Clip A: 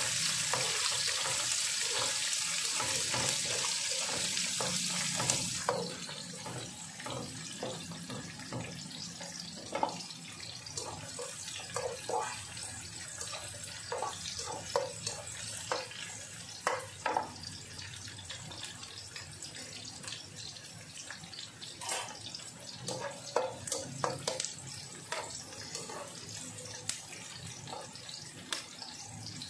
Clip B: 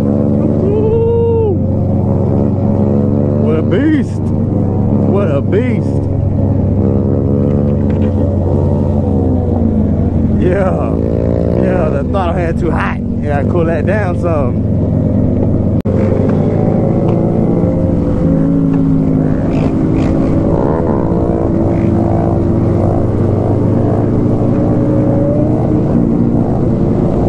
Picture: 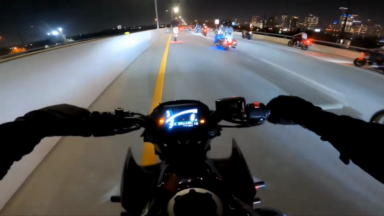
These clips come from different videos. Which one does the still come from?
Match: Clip B